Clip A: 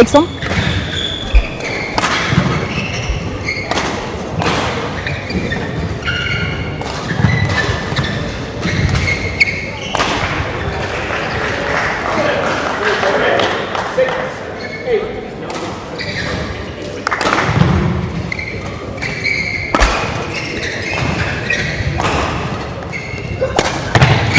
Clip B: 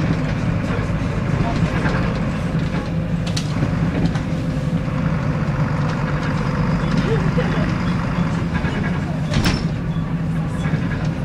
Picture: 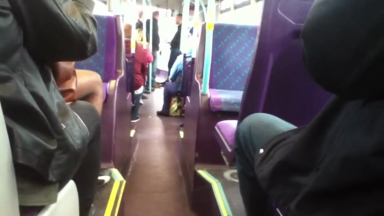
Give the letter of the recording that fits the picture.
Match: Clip B